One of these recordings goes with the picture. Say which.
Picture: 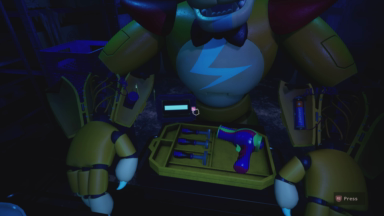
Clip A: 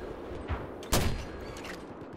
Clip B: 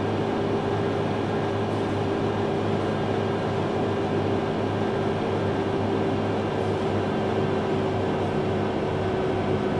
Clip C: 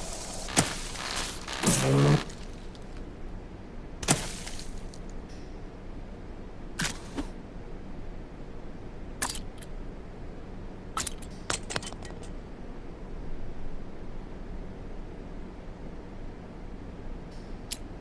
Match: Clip C